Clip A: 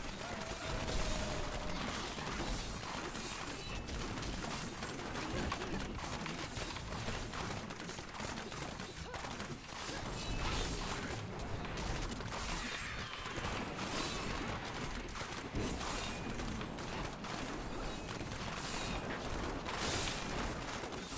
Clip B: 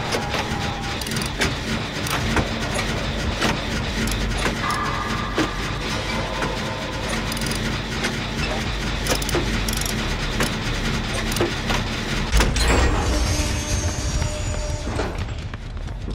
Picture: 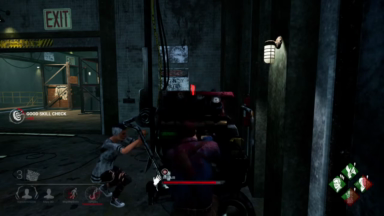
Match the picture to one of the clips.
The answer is B